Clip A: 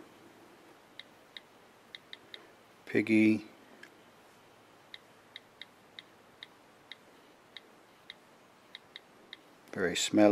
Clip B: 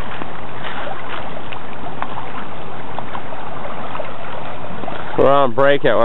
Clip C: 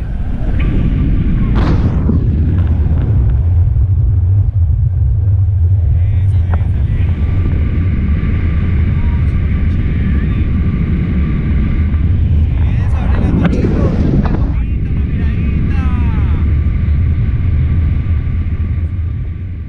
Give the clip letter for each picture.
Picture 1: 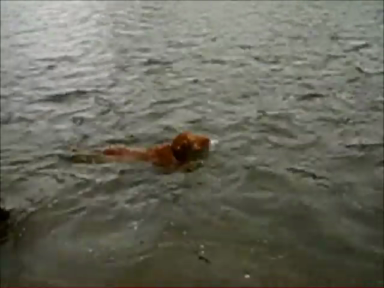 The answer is B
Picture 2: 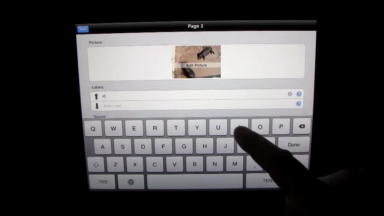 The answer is A